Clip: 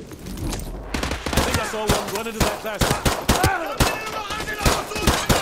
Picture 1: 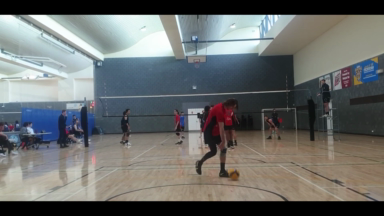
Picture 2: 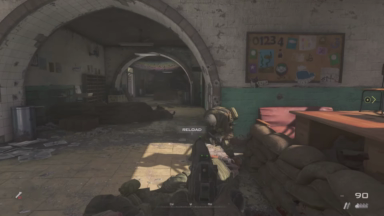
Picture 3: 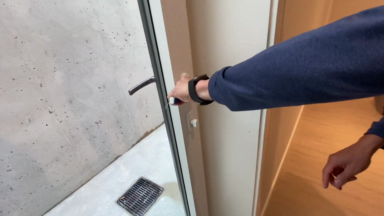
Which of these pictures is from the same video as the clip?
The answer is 2